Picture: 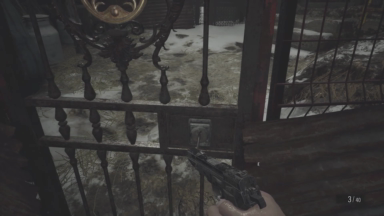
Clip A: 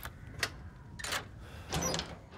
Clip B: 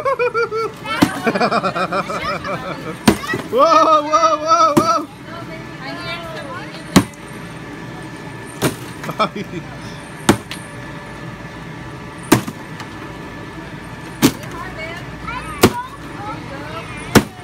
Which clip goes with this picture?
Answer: A